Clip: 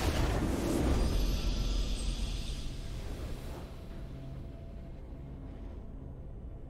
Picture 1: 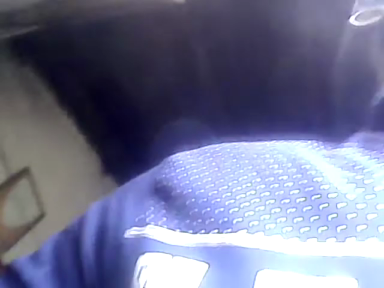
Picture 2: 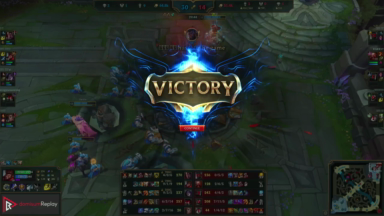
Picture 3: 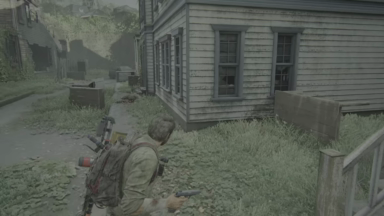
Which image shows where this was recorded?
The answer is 2